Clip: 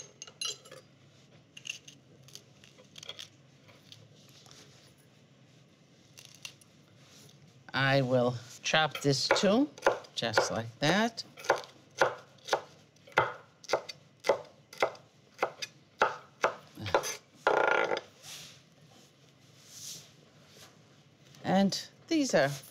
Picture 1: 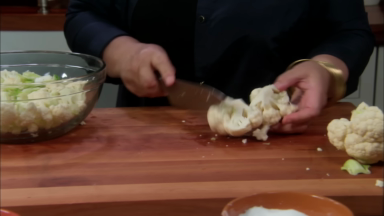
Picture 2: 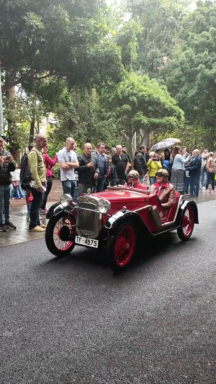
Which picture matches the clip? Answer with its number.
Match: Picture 1